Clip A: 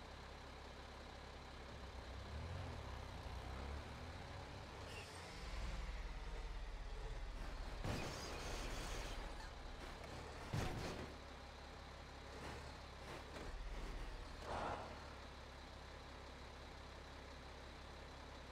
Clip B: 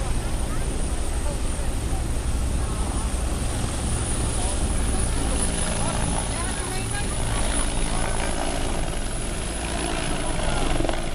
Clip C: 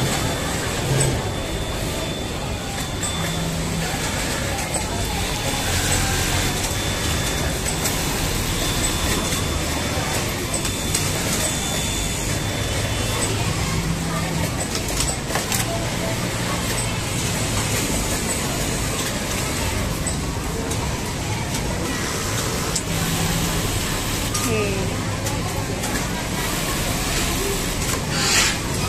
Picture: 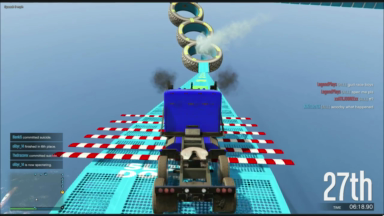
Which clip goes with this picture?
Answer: A